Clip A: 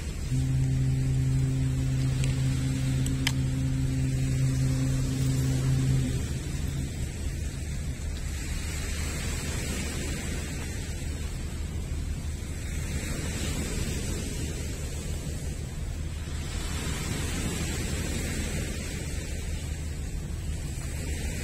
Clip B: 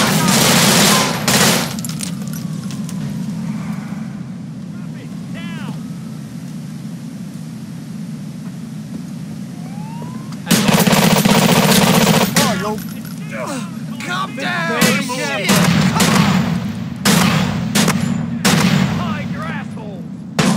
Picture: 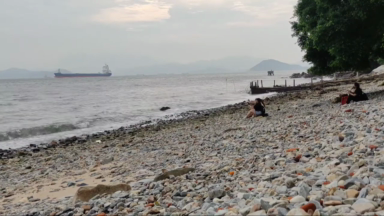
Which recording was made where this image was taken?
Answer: A